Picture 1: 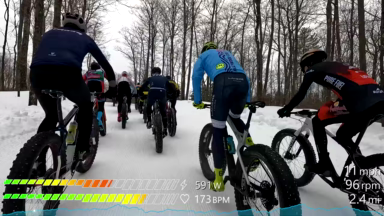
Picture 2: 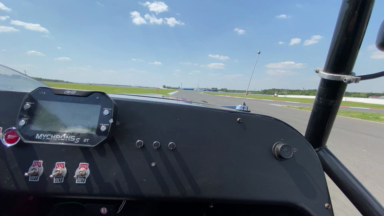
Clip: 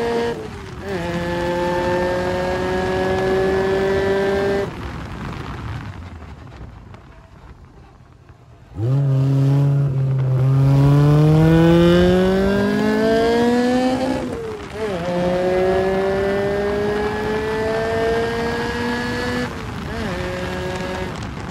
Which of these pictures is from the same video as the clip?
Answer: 2